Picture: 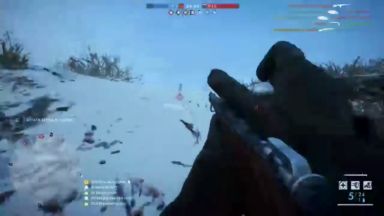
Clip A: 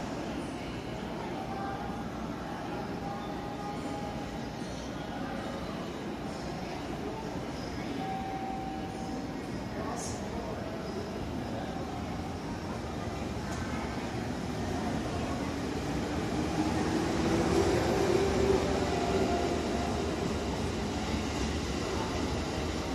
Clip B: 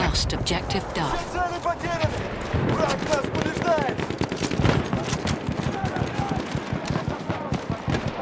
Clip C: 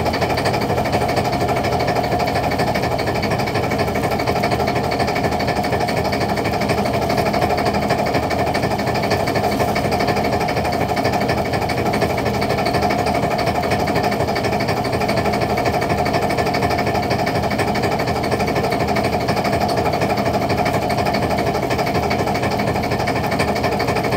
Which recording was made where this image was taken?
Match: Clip B